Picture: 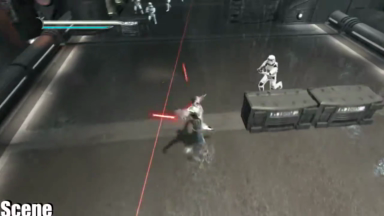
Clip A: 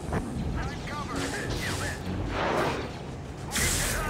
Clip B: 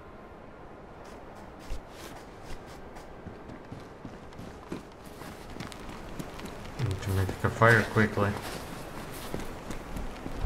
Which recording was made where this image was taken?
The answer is A